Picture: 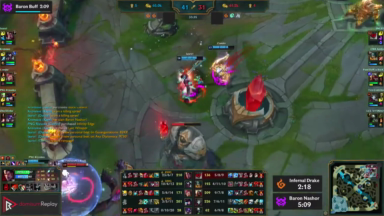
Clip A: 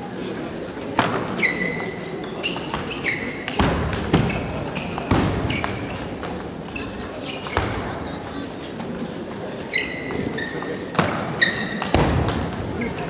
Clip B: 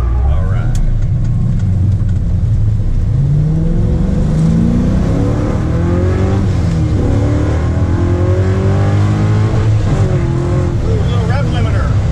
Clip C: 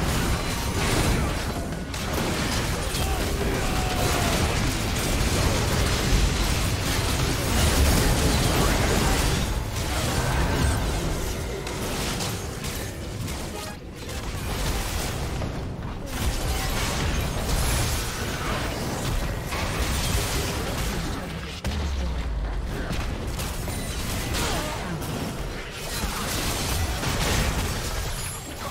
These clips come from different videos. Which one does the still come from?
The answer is C